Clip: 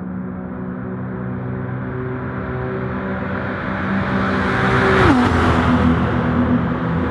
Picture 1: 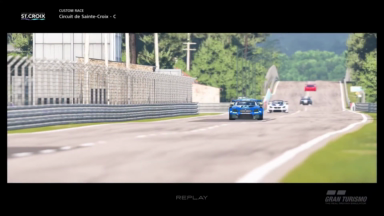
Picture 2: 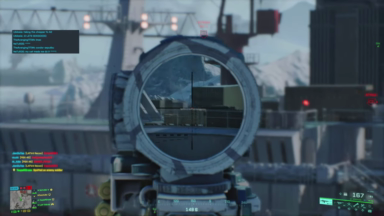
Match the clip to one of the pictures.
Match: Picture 1